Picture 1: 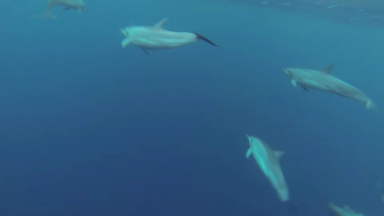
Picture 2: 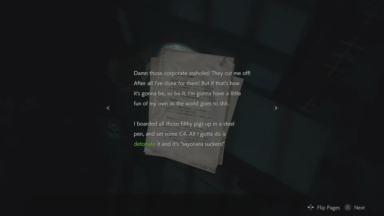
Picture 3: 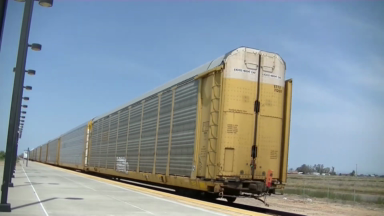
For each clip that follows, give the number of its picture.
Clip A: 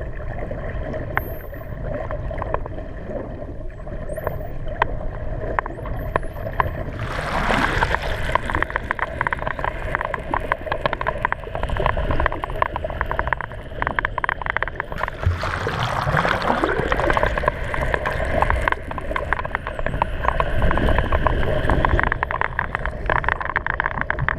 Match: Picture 1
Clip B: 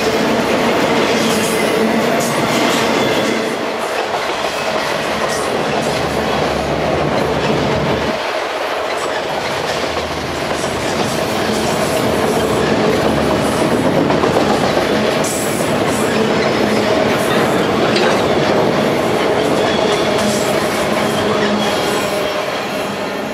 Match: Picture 3